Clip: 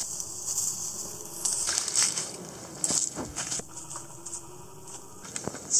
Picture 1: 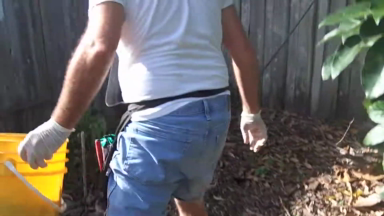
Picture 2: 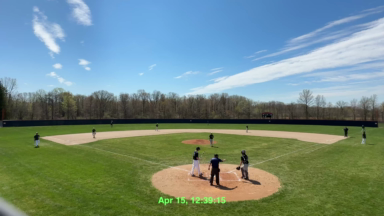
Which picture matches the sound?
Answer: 1